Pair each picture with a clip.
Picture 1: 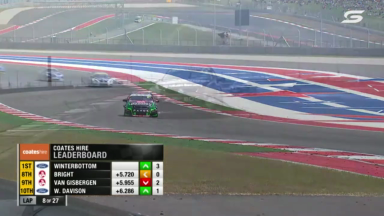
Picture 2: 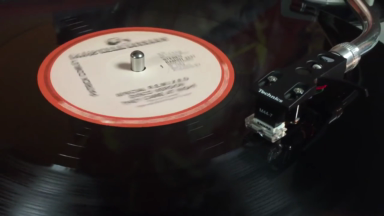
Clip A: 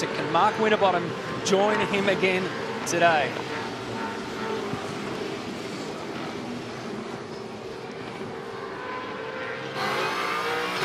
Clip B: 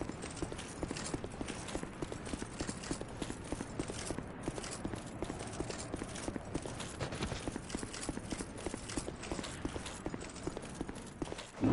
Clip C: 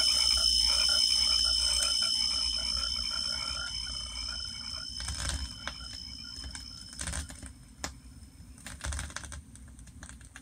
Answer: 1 A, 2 C